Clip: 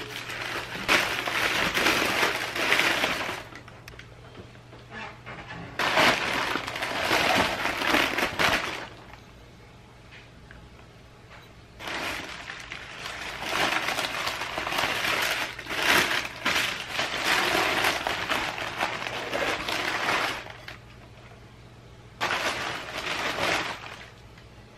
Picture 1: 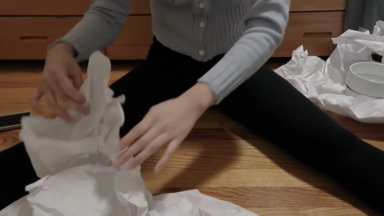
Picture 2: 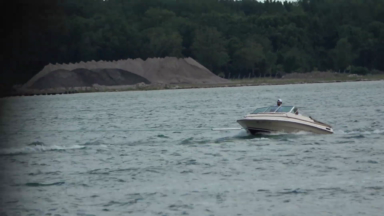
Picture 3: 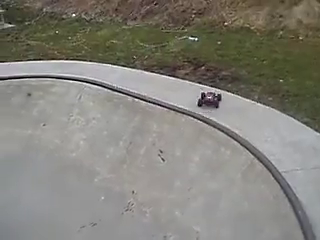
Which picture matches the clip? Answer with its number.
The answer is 1